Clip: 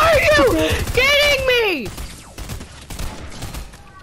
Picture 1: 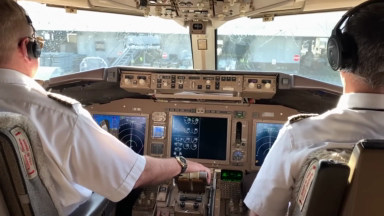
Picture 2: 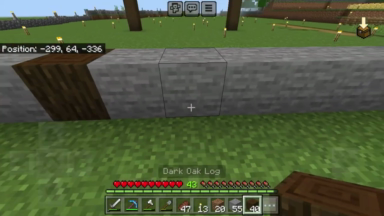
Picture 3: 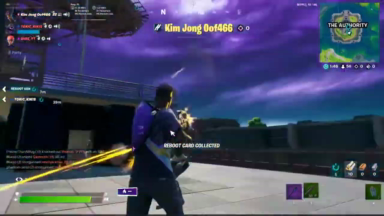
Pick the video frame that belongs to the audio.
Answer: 3